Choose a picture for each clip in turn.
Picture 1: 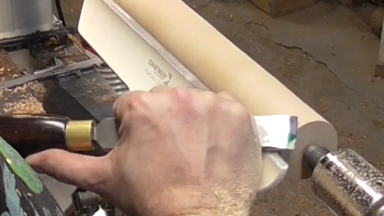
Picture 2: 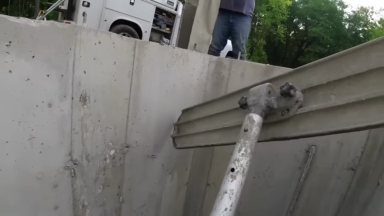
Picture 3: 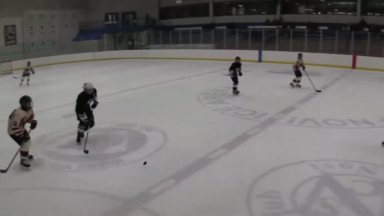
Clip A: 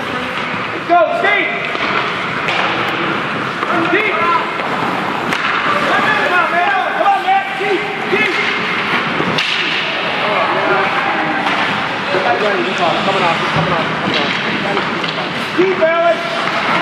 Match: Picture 3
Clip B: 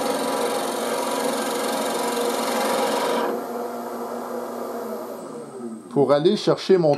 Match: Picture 1